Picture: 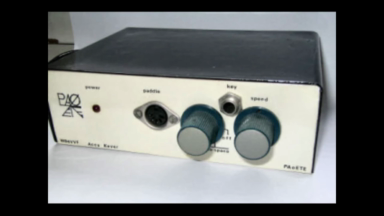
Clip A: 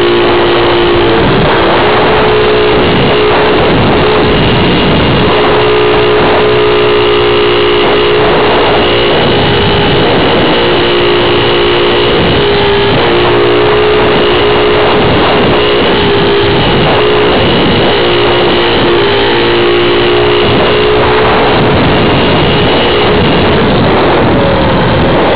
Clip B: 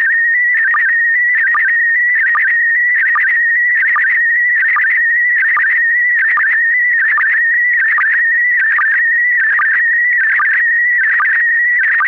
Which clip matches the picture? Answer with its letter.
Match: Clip B